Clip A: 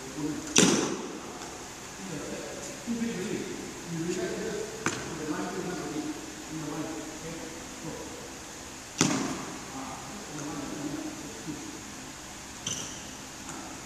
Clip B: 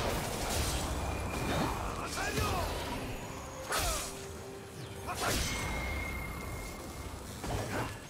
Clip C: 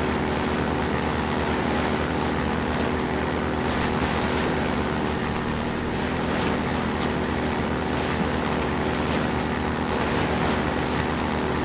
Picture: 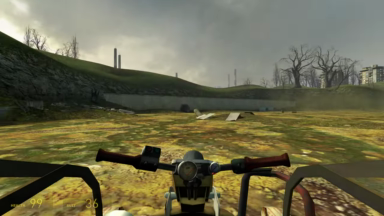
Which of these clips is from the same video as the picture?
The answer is C